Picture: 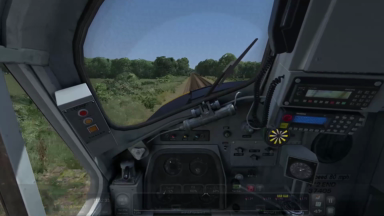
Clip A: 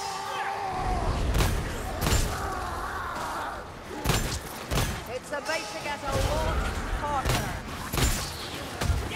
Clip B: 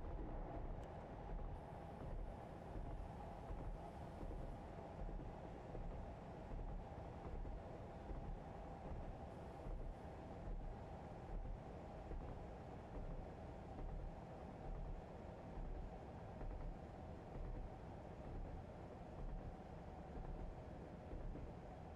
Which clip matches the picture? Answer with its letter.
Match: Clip B